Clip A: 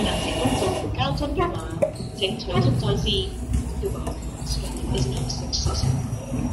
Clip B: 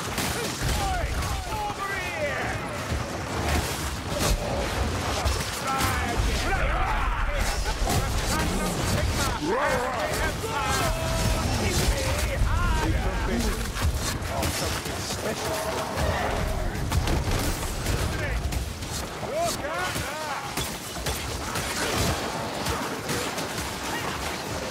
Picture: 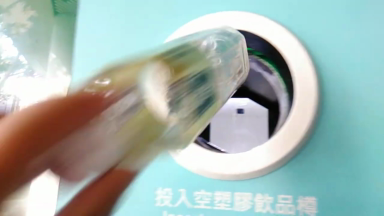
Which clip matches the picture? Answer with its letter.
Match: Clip A